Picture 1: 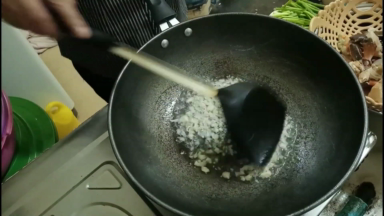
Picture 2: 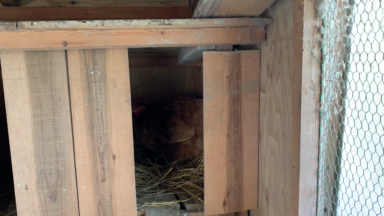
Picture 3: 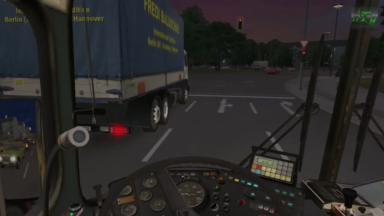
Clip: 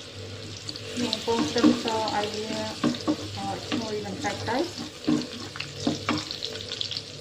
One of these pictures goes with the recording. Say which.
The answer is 1